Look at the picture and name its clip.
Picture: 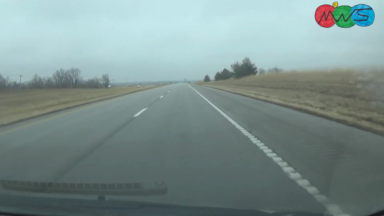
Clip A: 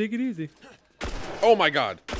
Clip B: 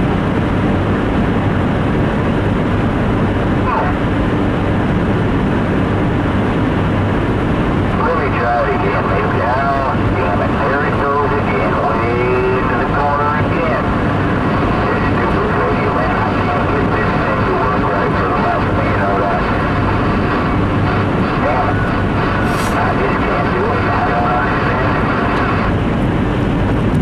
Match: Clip B